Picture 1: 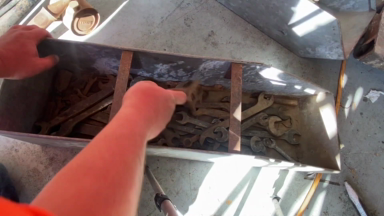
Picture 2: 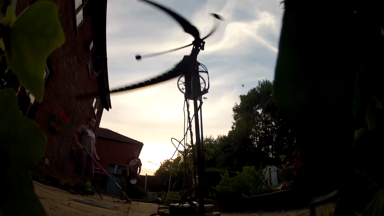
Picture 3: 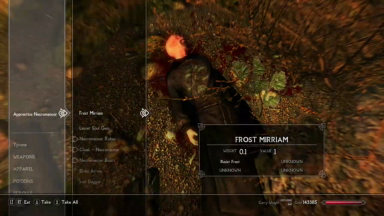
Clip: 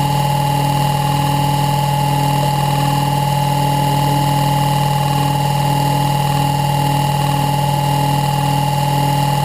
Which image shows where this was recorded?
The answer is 2